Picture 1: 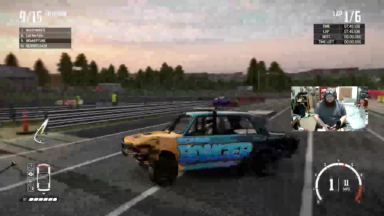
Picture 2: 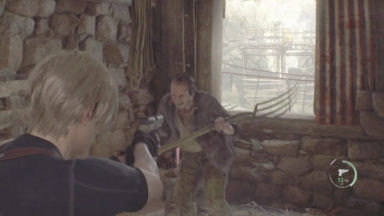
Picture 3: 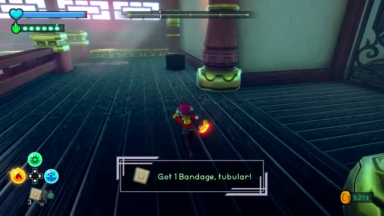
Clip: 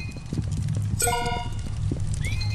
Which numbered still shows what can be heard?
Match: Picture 3